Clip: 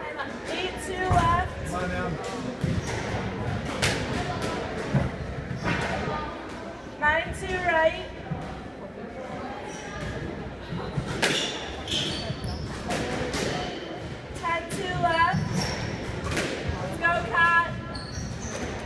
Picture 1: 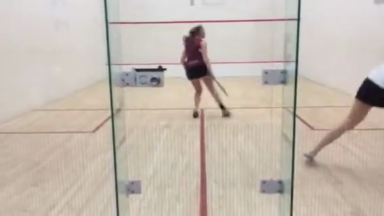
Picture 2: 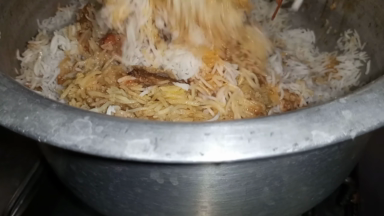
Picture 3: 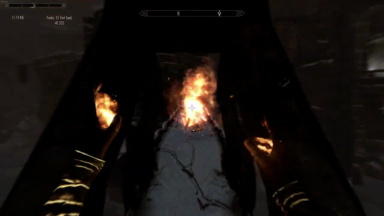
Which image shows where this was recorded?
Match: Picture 1